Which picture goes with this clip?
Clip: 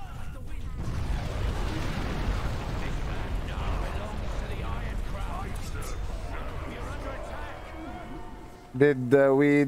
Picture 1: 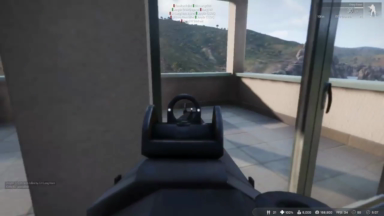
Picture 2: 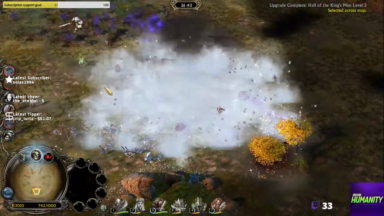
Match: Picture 2